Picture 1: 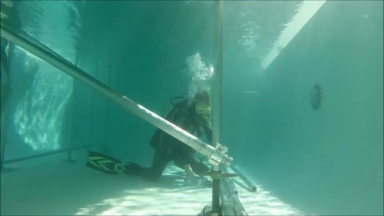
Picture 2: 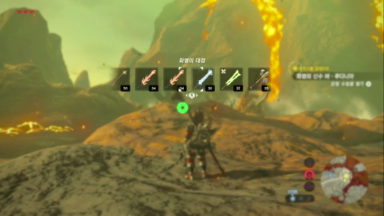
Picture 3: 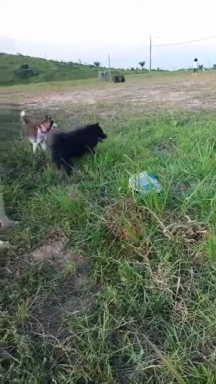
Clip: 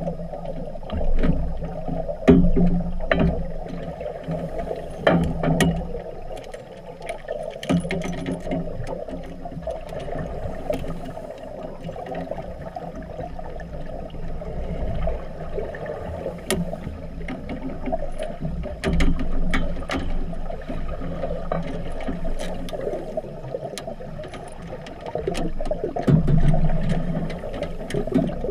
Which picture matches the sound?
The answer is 1